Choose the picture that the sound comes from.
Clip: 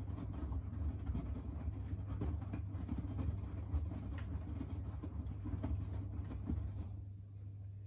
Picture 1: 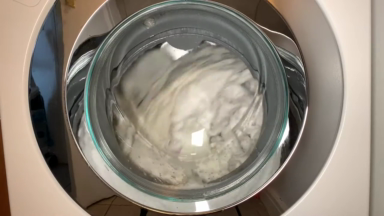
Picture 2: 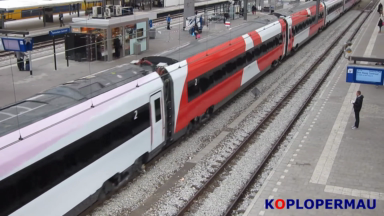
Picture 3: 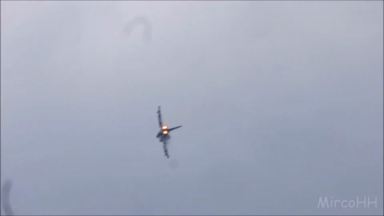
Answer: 1